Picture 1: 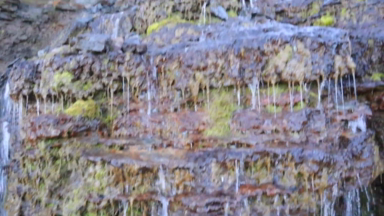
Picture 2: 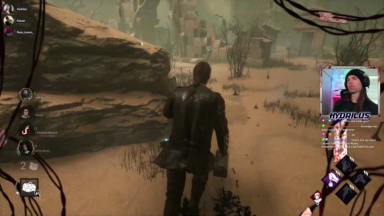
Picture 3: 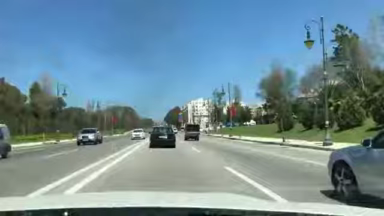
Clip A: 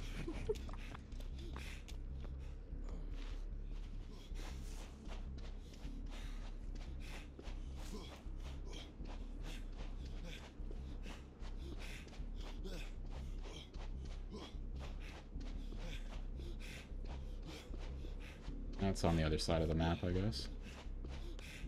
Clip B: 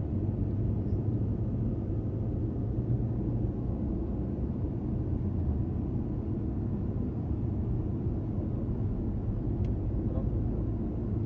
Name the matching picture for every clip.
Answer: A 2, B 3